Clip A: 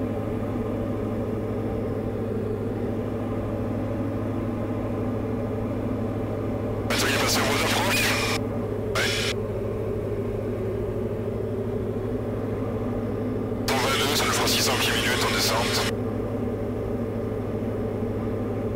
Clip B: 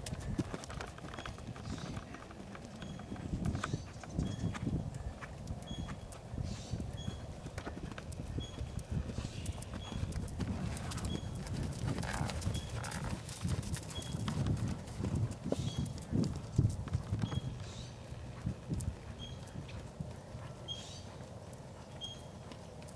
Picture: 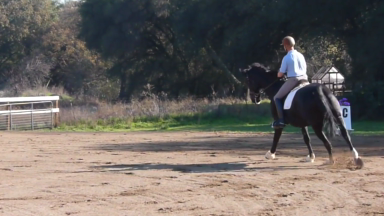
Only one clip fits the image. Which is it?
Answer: B